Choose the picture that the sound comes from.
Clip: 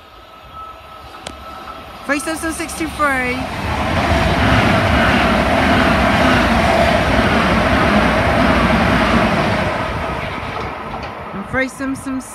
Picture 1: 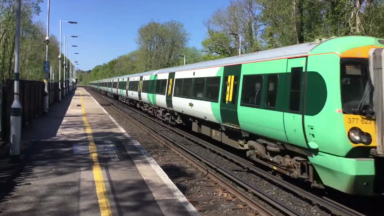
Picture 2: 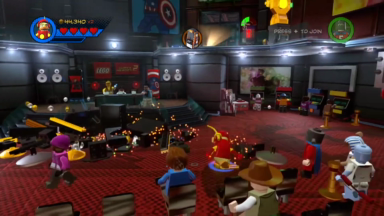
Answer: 1